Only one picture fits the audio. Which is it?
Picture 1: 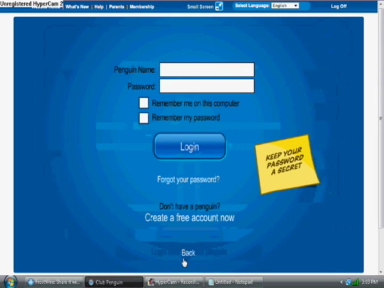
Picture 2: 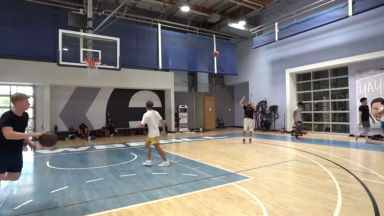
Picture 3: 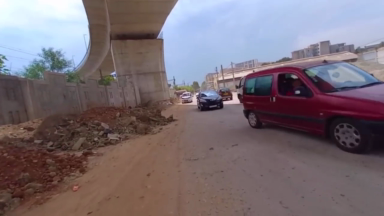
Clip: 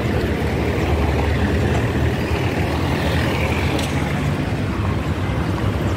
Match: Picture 3